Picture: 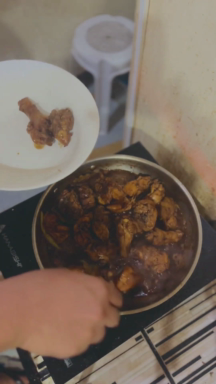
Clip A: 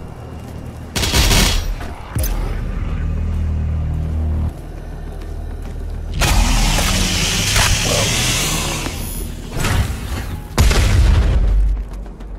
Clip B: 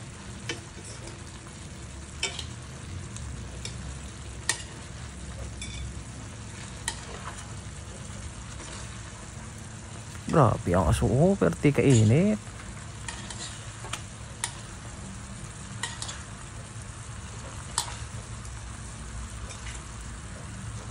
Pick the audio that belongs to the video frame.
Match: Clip B